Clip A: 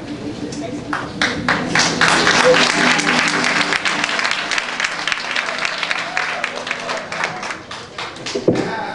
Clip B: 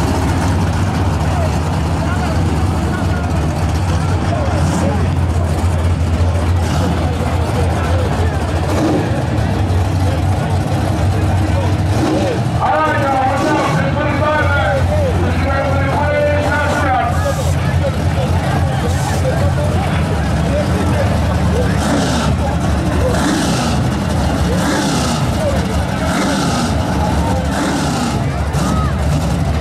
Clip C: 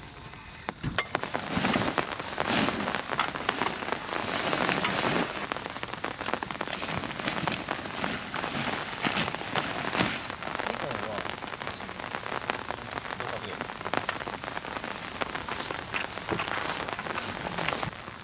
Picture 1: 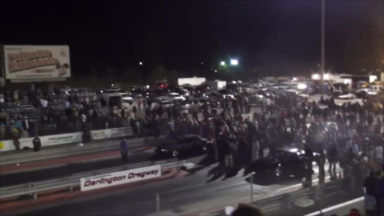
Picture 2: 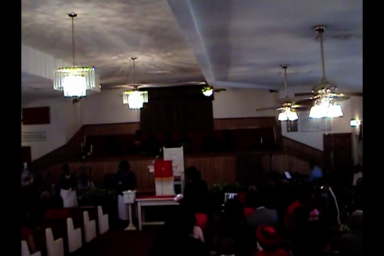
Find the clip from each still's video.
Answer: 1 B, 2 A